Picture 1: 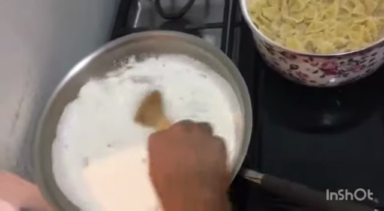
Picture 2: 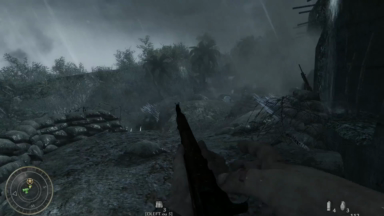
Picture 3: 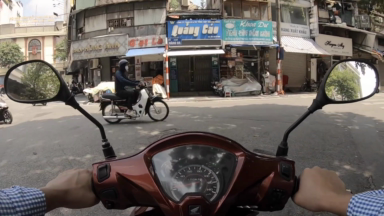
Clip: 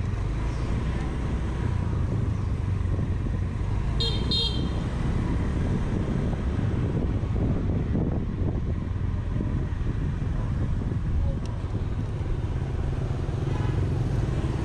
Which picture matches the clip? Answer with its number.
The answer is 3